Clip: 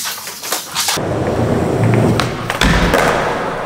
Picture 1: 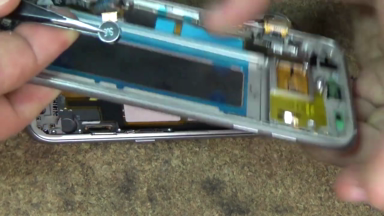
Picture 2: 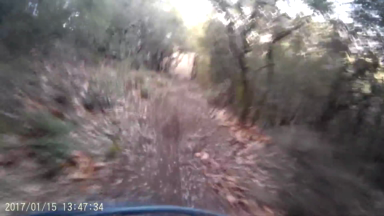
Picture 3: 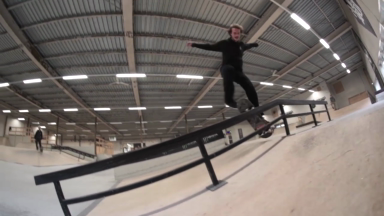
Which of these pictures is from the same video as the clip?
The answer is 3